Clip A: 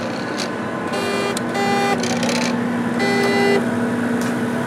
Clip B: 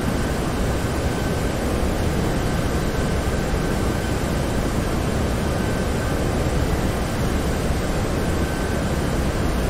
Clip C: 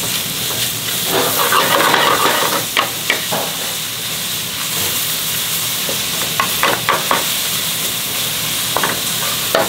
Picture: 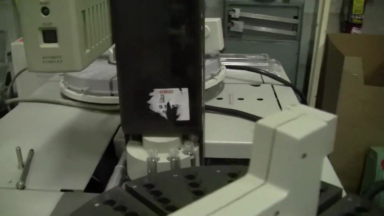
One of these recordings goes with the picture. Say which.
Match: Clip A